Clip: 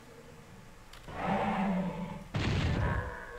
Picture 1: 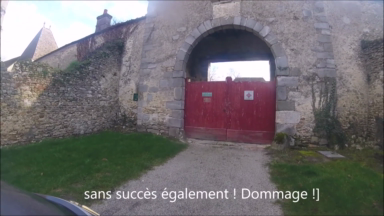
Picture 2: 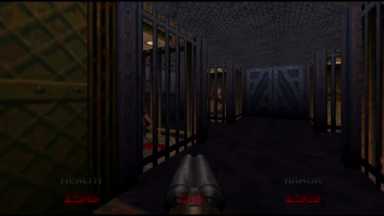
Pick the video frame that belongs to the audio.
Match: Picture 2